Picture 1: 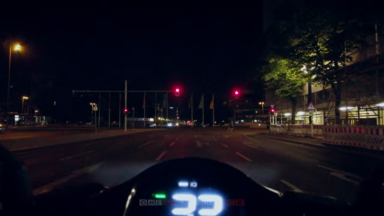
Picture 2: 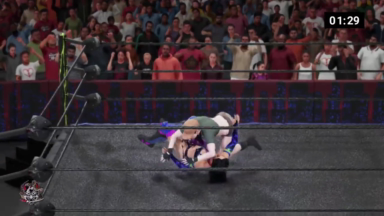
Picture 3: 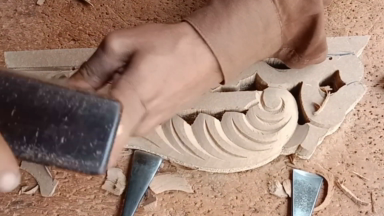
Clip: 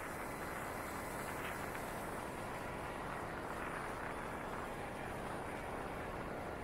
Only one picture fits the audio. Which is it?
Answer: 1